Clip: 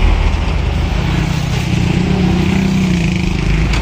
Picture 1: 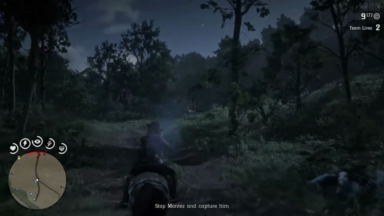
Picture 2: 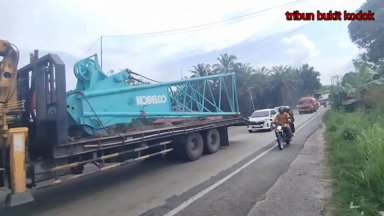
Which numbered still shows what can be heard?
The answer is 2